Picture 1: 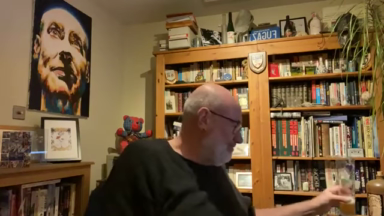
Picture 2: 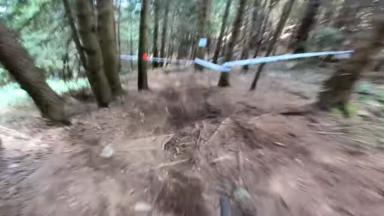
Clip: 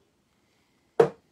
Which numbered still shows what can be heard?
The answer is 1